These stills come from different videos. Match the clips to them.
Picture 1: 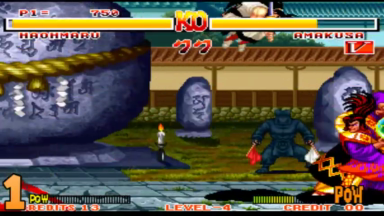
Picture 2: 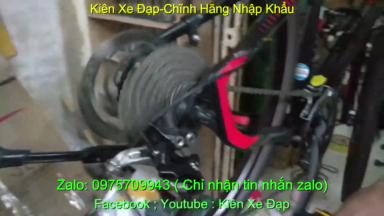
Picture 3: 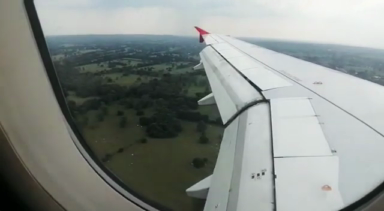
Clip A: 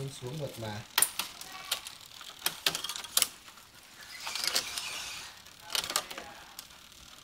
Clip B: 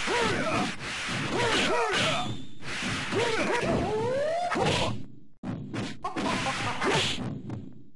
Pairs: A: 2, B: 1